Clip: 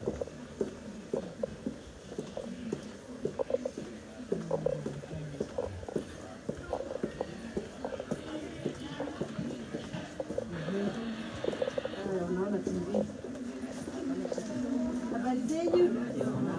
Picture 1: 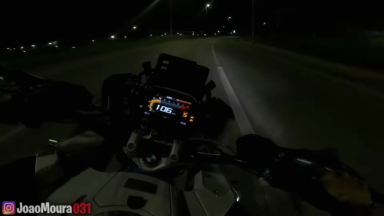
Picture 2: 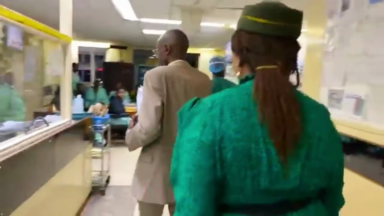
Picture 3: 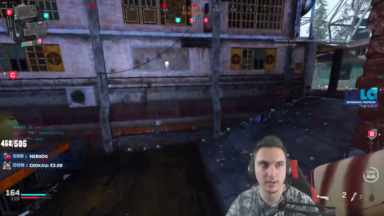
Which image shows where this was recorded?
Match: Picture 2